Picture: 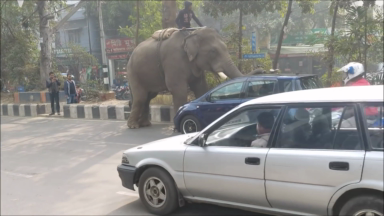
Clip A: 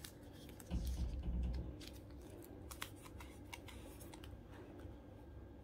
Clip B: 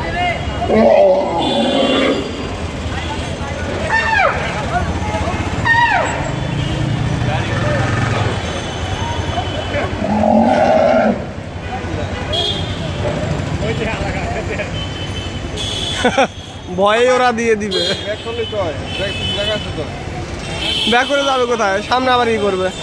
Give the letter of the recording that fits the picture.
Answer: B